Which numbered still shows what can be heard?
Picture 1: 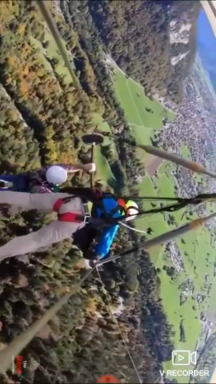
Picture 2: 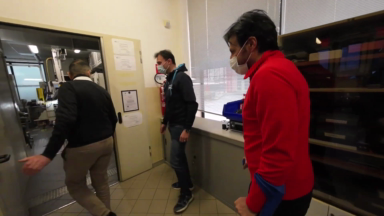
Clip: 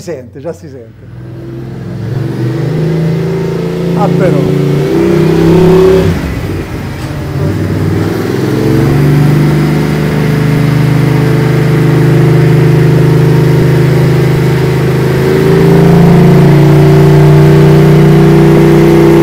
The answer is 2